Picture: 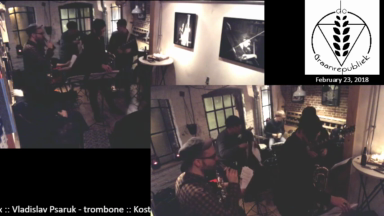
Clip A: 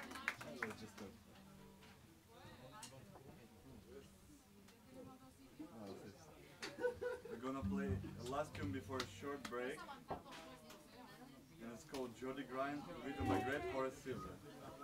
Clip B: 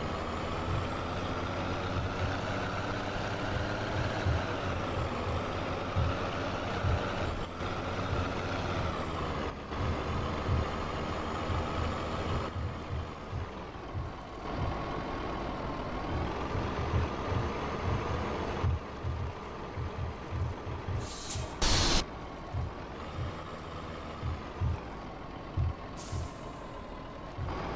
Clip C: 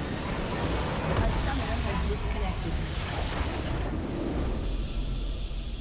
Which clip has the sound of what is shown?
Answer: A